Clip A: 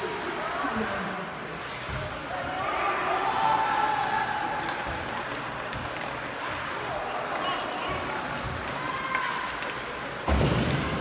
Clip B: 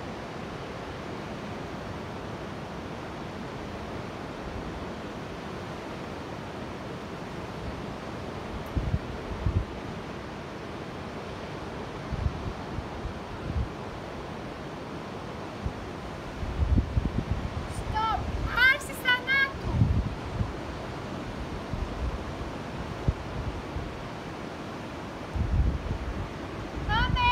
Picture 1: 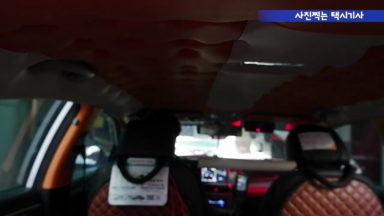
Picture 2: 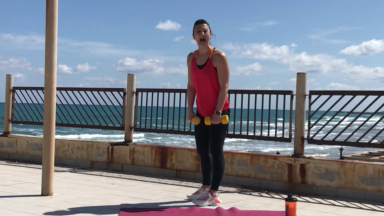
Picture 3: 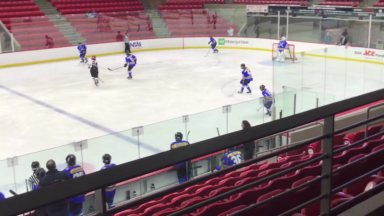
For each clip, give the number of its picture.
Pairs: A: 3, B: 2